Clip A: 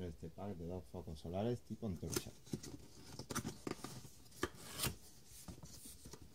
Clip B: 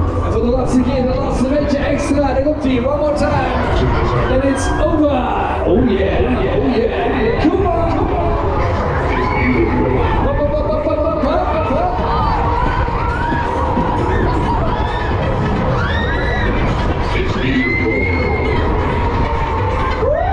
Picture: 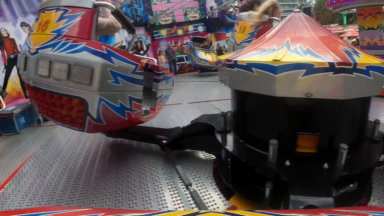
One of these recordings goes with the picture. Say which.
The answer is B